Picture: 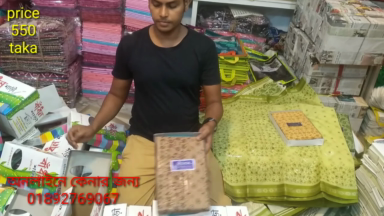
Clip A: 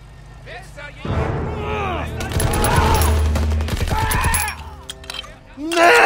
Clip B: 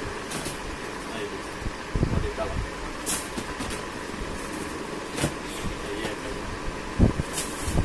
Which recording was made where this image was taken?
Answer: B